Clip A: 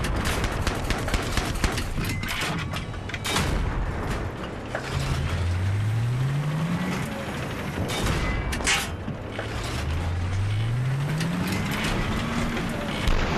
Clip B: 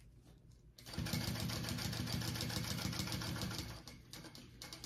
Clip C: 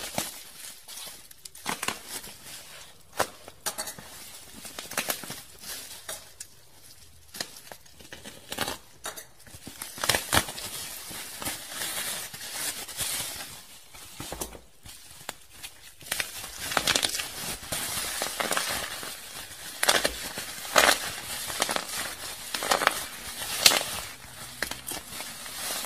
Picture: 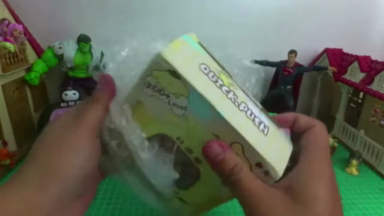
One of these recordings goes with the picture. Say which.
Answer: C